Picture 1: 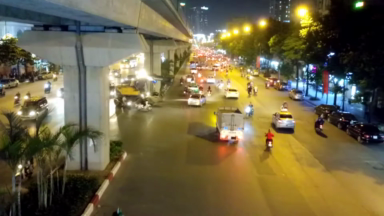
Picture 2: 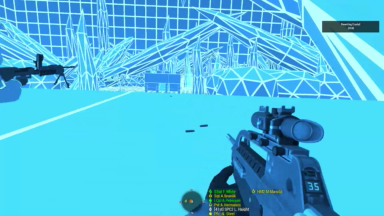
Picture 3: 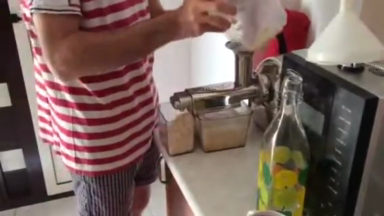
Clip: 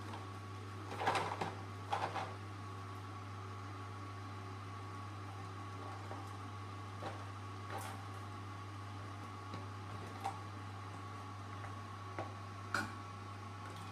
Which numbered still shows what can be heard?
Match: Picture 3